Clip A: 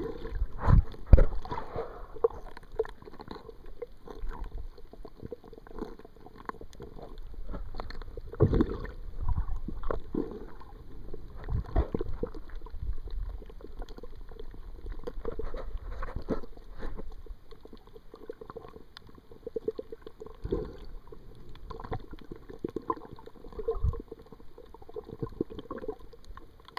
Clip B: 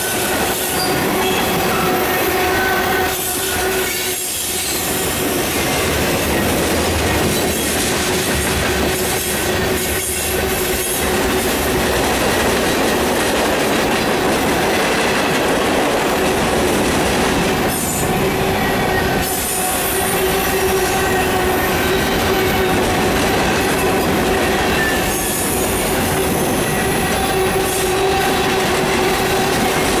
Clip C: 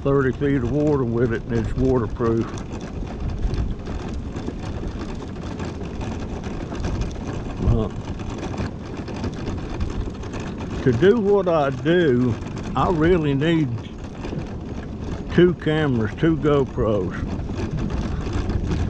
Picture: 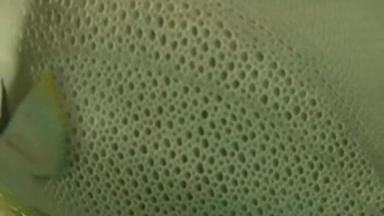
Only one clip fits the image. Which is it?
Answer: A